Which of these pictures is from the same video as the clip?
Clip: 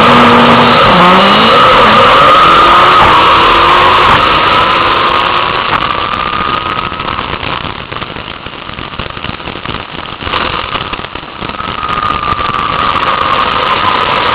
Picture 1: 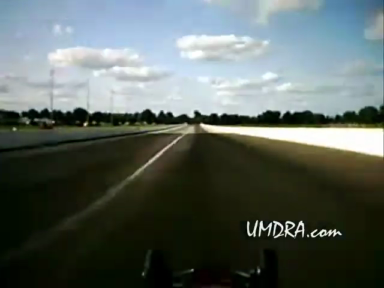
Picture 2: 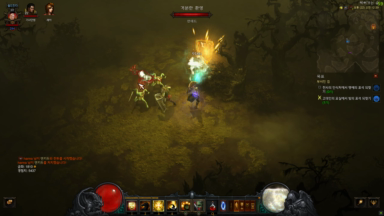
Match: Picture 1